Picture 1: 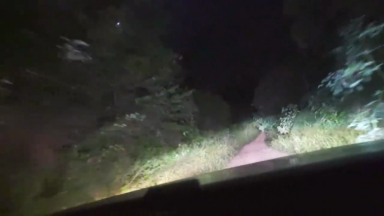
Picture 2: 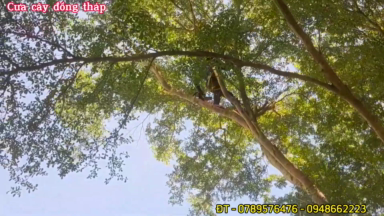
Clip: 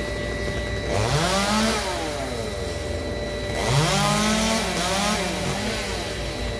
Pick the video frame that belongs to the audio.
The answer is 2